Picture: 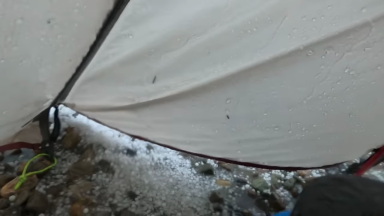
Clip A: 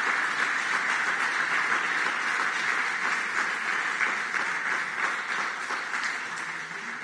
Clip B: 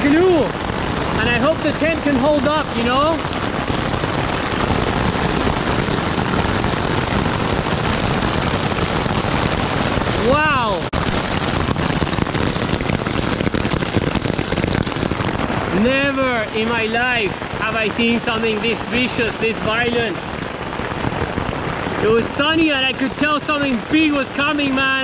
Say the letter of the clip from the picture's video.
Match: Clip B